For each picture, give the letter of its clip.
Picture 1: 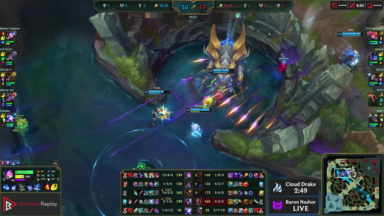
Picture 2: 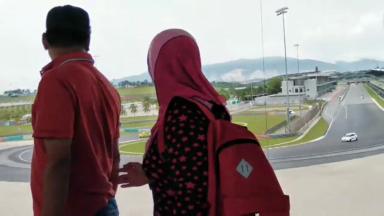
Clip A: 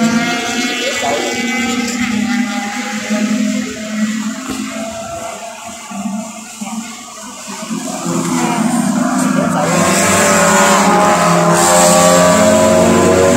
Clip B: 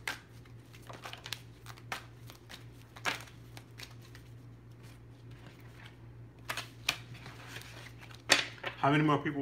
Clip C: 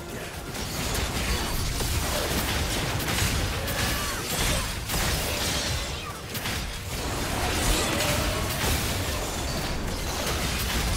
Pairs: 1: C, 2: A